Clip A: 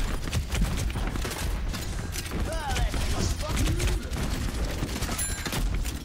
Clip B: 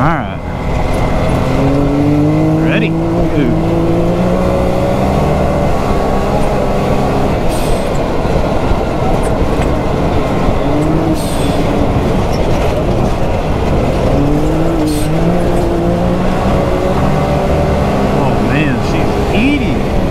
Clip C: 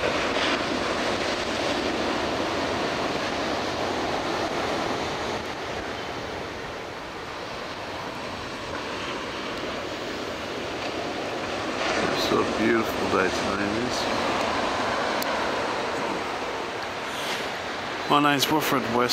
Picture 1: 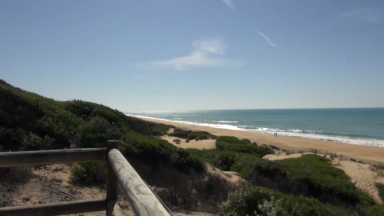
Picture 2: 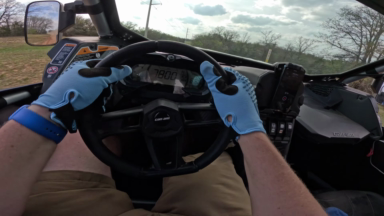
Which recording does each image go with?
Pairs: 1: C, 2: B